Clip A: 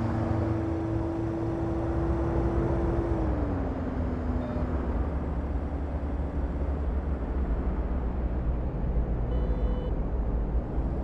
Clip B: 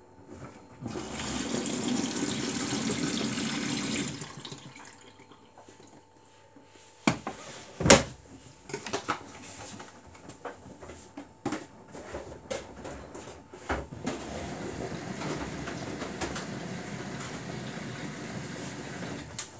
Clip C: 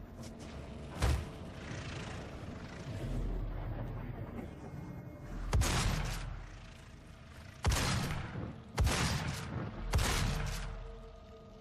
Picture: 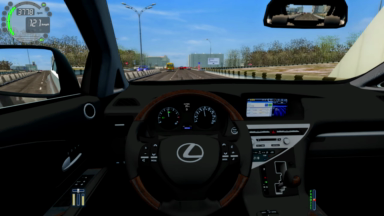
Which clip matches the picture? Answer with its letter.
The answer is A